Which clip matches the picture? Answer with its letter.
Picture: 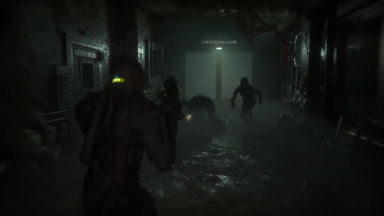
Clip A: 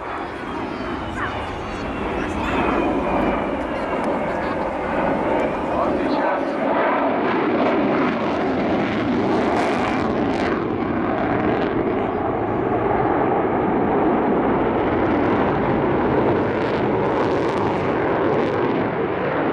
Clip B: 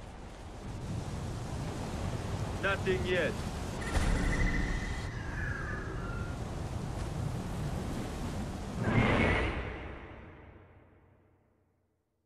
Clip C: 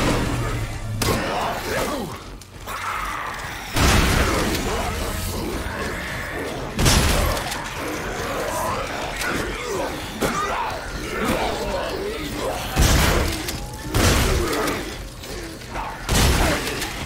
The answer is C